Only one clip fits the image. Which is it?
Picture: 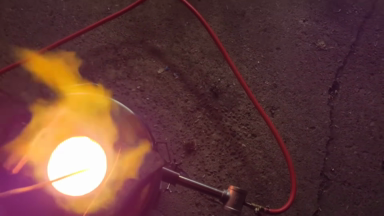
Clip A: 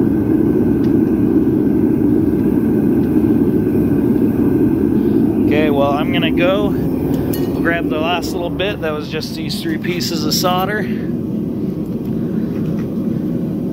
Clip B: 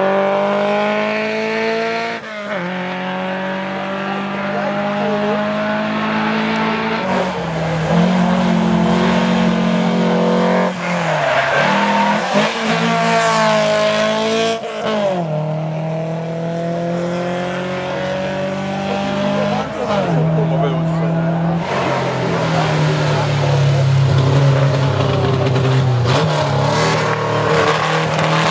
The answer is A